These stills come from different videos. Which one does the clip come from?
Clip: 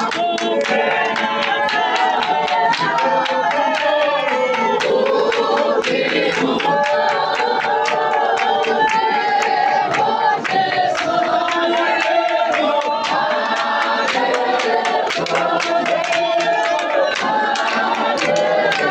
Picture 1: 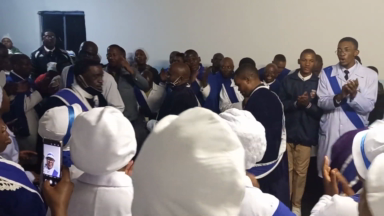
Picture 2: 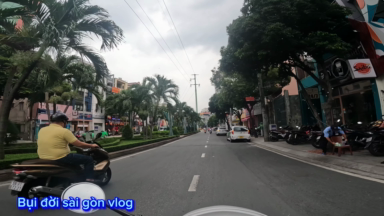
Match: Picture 1